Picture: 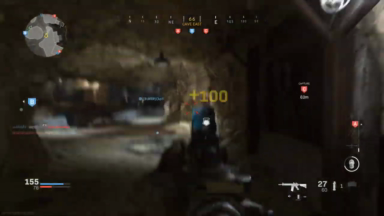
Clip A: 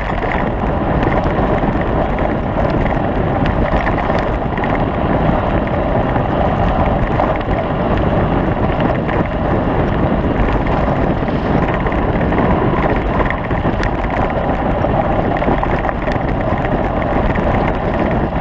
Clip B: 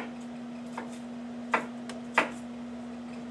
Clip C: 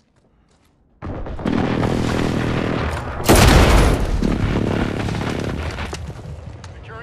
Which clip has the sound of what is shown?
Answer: C